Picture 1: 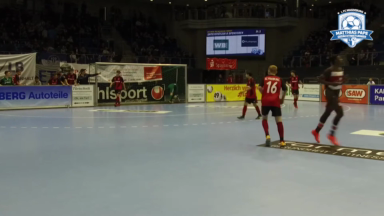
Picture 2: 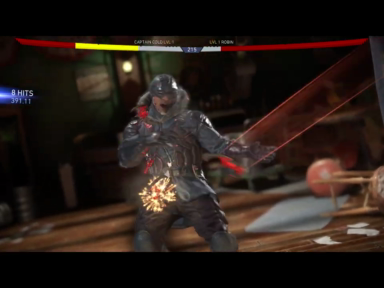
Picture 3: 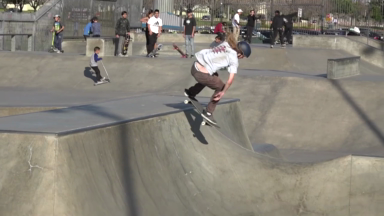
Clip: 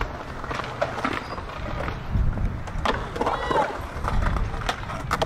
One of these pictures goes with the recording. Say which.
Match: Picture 3